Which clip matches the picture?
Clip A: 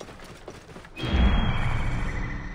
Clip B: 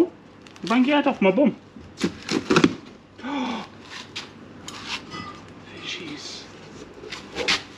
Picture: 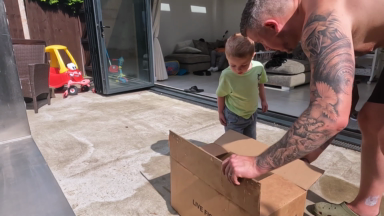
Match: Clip B